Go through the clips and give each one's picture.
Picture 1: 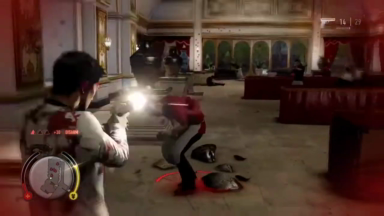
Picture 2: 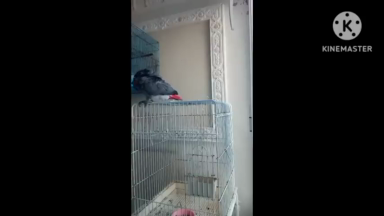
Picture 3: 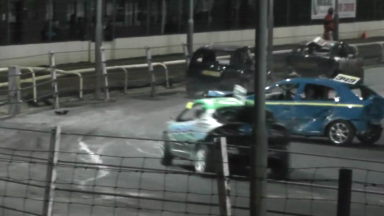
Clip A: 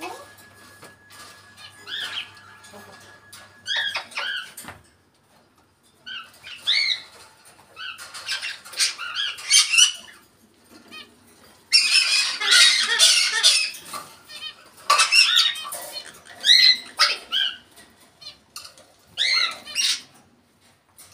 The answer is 2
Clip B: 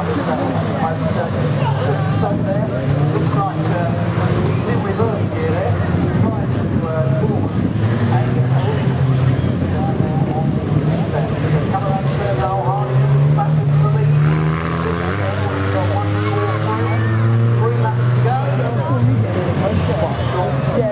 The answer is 3